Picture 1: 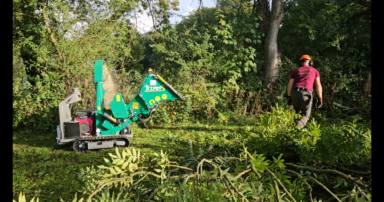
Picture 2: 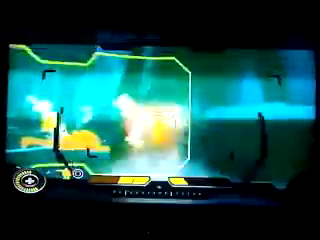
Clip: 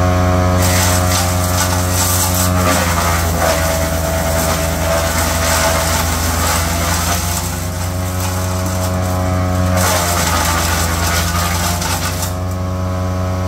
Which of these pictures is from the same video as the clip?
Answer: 1